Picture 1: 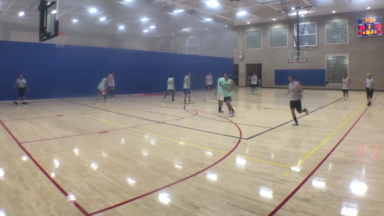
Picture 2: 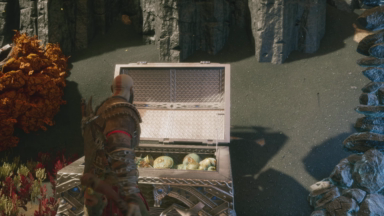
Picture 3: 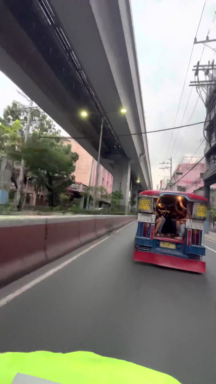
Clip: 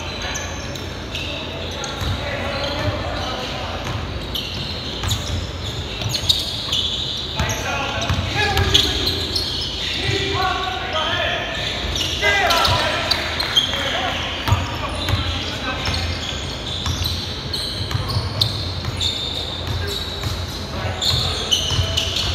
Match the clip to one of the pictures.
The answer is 1